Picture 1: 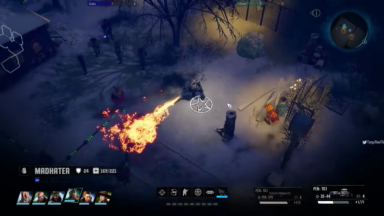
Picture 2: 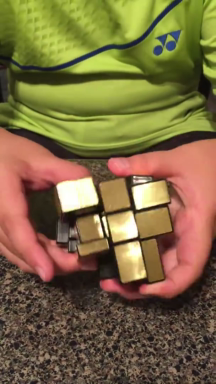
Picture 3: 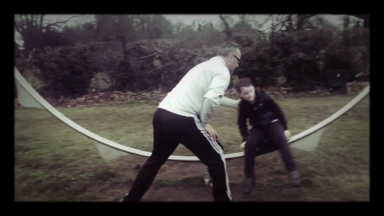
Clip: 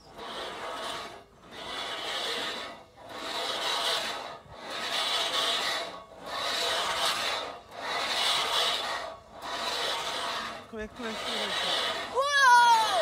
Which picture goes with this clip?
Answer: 3